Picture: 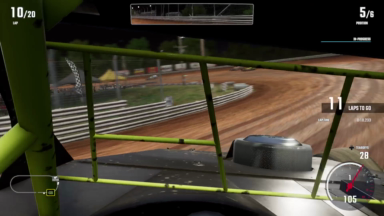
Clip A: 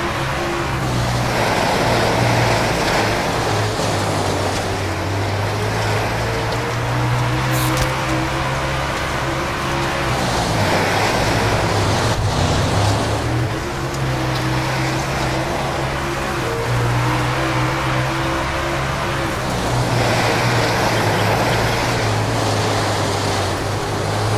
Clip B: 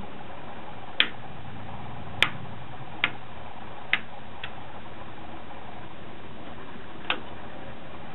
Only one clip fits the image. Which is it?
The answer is A